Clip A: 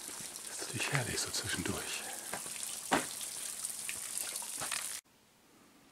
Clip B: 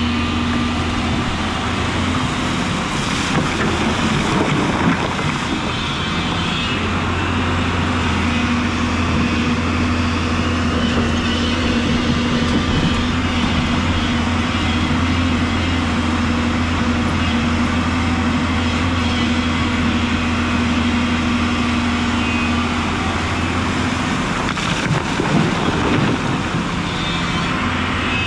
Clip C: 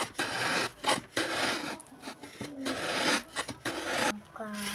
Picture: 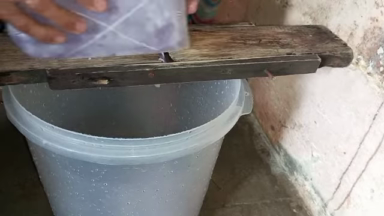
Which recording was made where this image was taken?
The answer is C